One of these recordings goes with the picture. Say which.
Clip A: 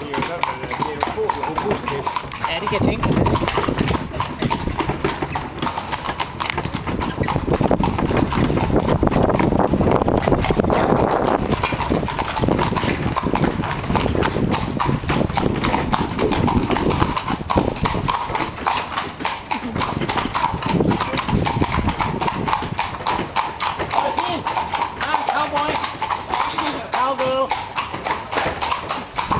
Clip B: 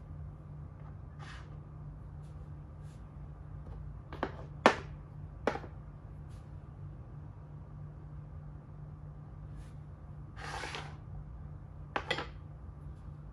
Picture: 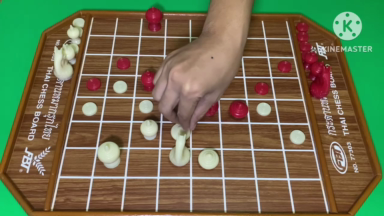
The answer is B